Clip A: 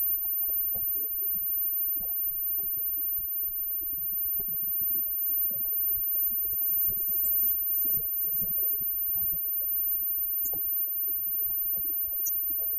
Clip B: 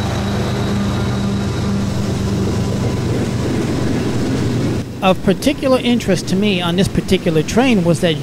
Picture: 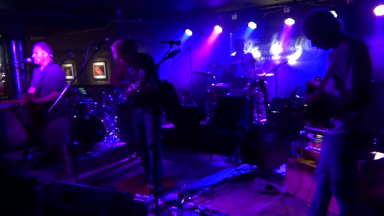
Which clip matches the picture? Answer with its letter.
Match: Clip A